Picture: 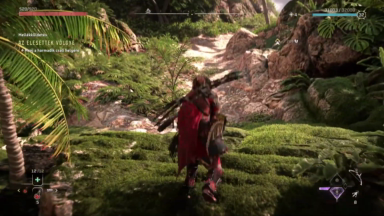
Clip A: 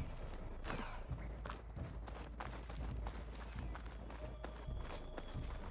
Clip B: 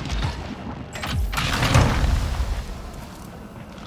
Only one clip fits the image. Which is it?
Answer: A